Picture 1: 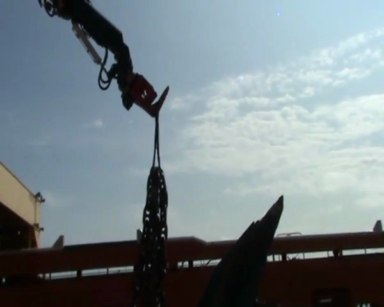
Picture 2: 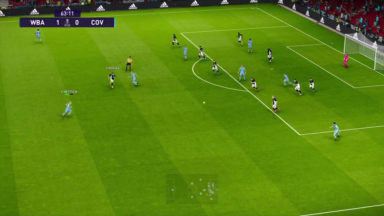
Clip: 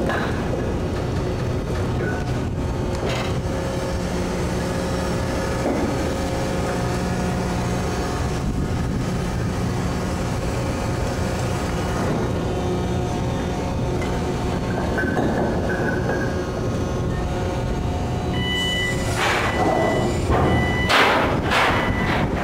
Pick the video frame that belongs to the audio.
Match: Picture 1